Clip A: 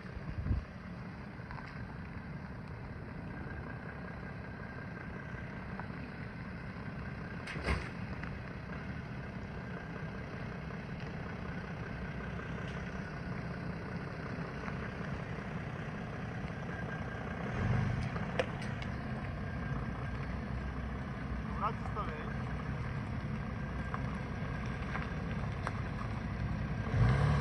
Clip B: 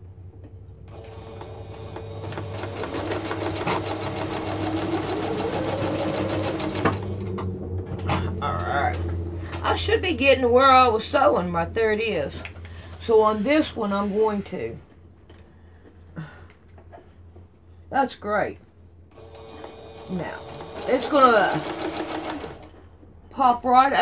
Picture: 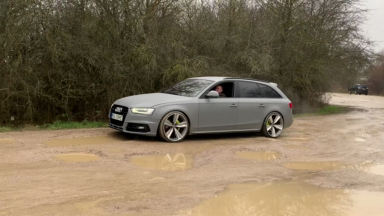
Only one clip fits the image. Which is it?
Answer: A